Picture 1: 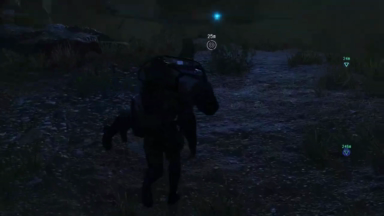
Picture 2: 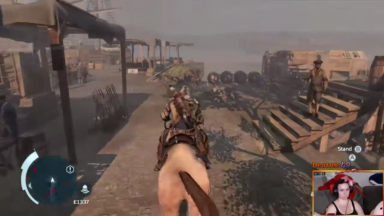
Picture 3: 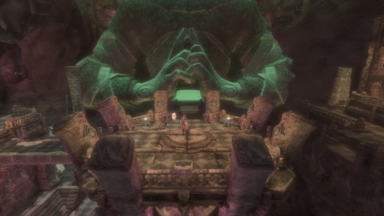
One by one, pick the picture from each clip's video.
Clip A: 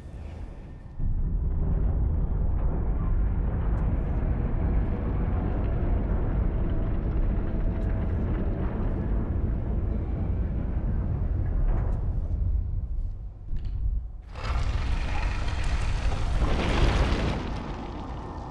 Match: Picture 3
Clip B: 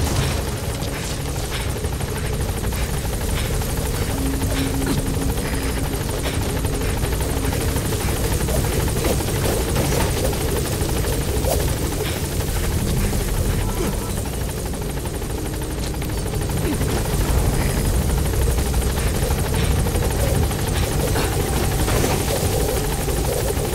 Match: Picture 1